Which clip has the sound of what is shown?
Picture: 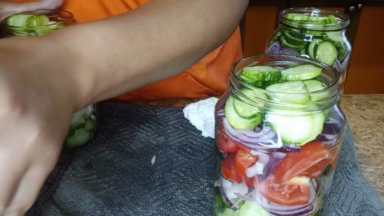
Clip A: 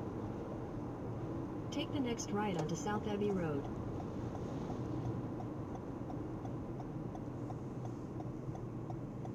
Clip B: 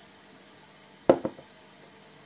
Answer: B